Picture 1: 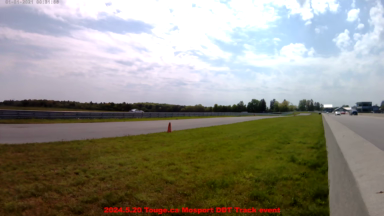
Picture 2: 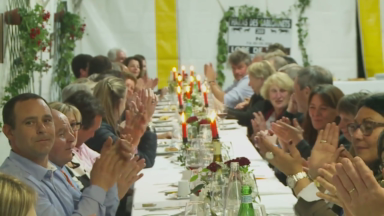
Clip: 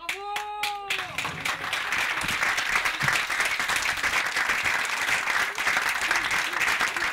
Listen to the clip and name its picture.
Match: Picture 2